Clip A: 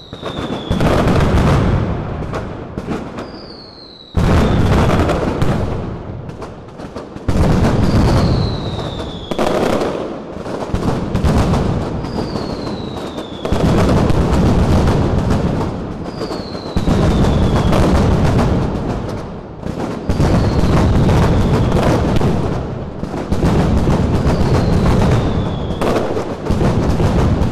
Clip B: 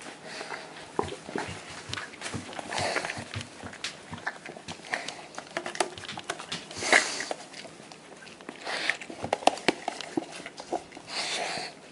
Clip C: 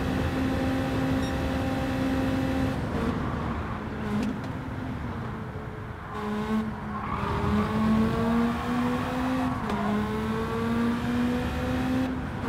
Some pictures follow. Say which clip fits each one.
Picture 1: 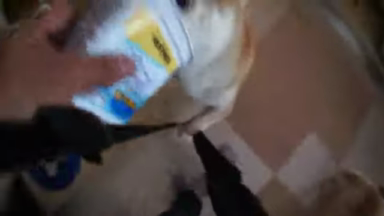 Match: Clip B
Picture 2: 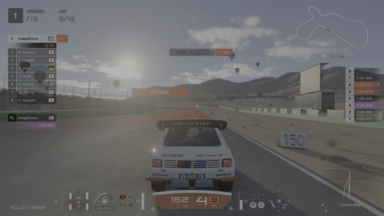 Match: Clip C